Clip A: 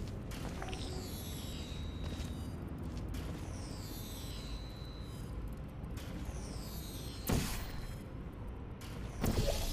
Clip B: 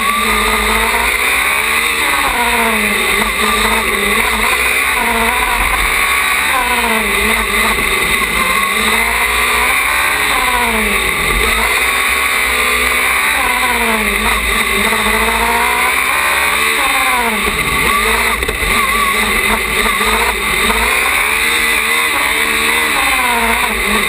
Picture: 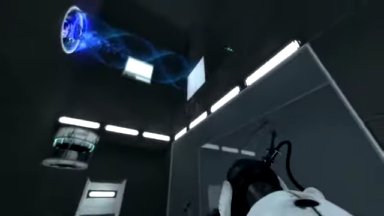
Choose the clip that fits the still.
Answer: A